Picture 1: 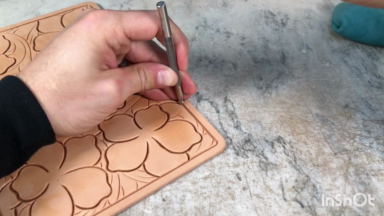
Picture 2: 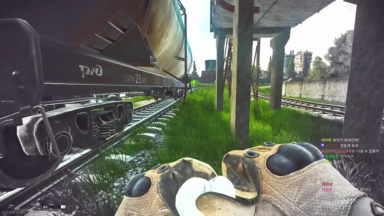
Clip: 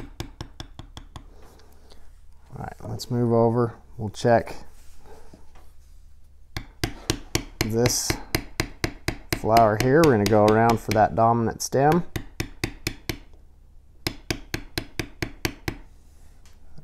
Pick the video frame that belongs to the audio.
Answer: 1